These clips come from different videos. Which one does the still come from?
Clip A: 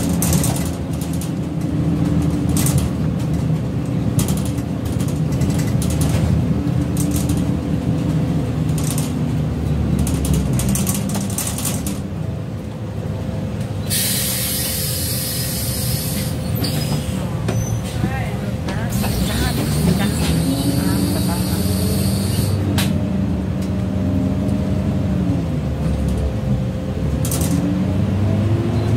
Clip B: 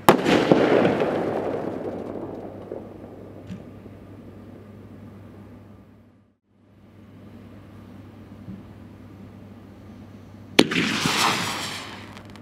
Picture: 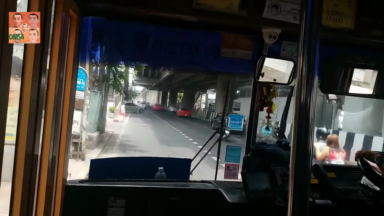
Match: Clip A